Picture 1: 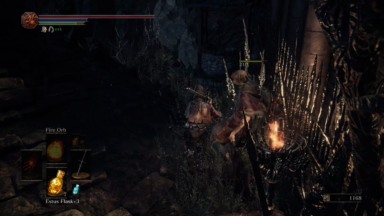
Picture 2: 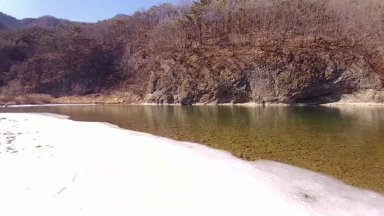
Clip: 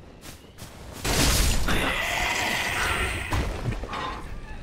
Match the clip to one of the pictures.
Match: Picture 1